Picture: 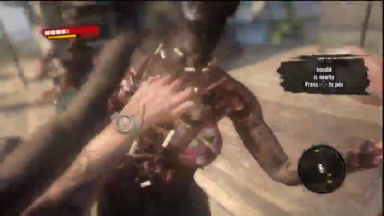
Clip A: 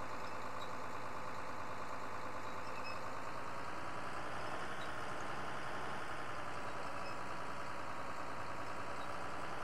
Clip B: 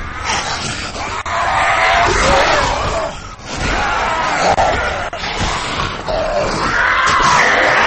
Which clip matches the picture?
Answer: B